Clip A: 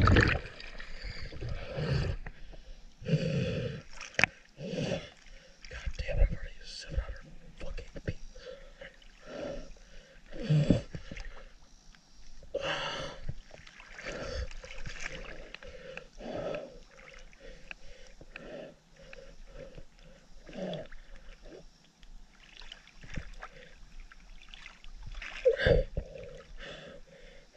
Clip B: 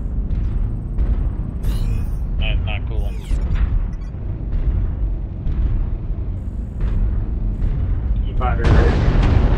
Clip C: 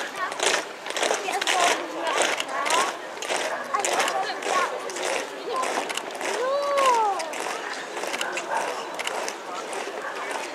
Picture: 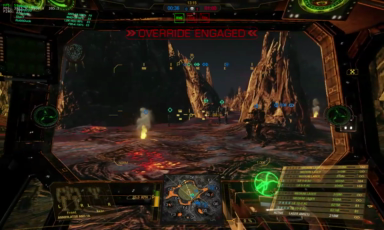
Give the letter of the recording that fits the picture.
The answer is B